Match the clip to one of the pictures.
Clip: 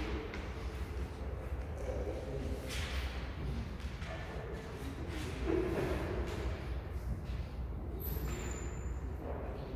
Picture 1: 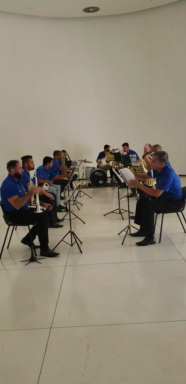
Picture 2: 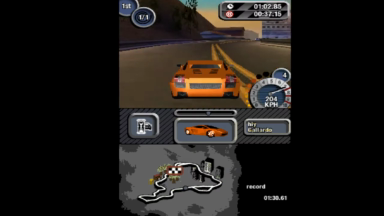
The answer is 1